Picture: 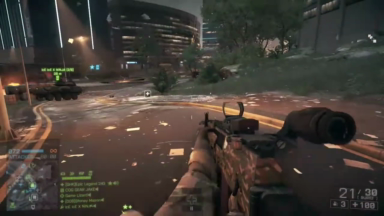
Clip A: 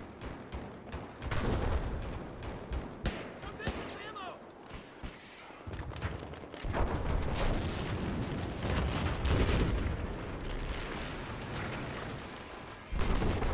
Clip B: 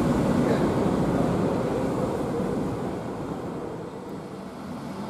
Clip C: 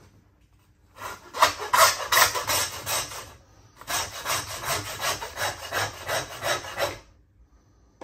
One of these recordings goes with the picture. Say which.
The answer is A